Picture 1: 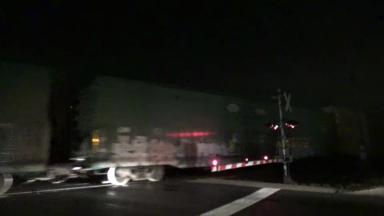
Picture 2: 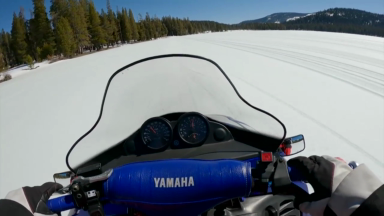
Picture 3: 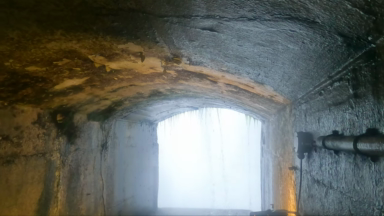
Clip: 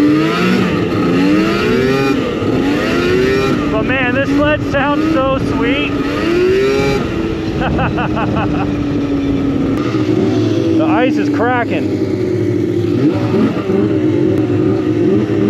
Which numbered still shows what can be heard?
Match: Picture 2